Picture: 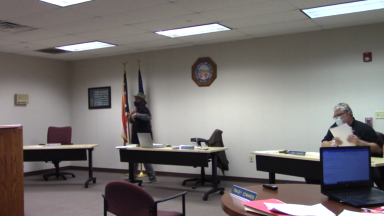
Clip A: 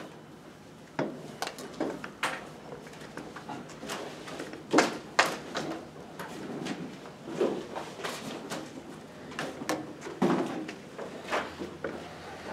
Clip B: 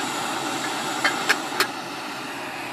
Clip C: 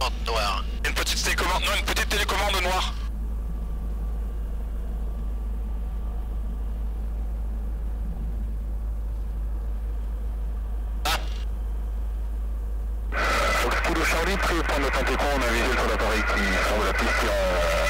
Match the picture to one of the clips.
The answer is A